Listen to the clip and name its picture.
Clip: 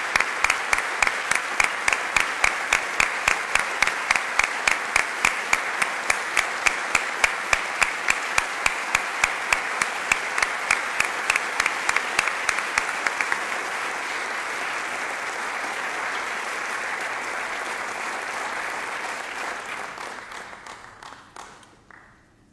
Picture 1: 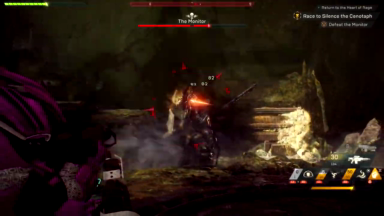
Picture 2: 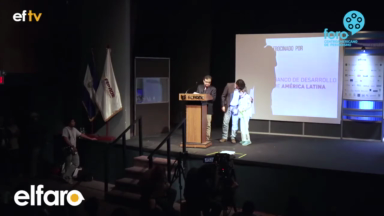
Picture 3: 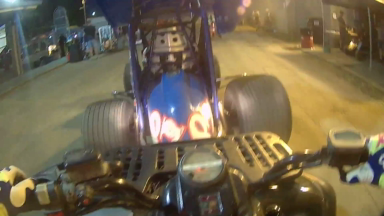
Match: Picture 2